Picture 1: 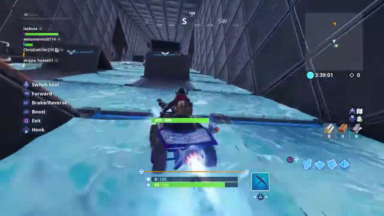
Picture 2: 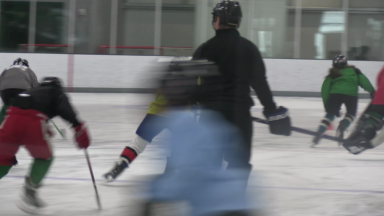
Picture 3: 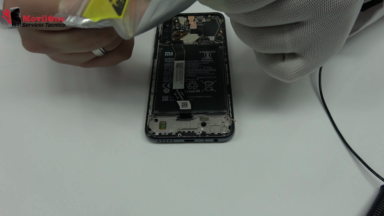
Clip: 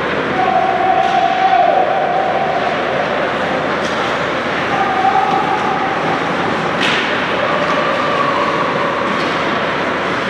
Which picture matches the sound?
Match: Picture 2